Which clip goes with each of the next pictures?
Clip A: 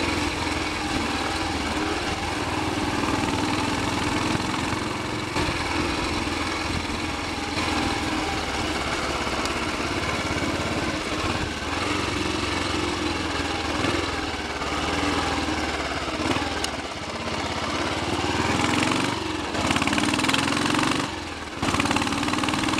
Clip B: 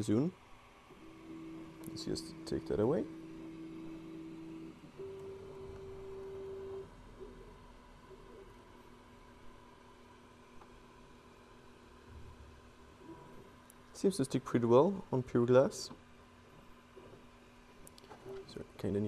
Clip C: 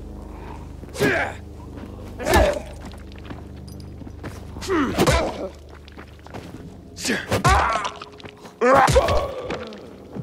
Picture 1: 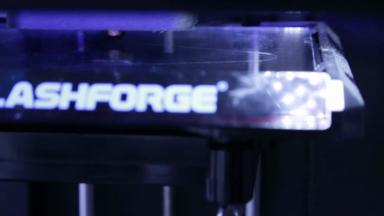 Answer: B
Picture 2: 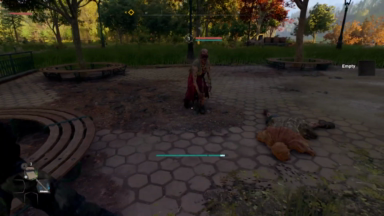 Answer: C